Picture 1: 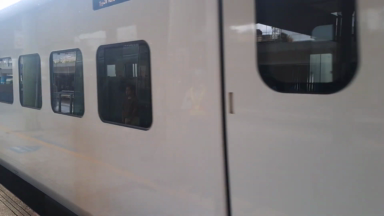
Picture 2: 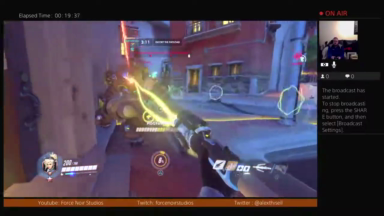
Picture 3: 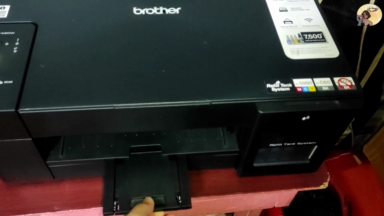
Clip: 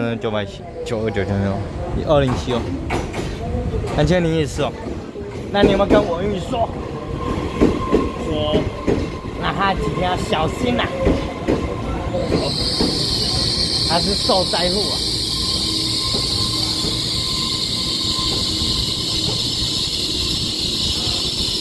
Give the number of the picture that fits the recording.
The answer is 1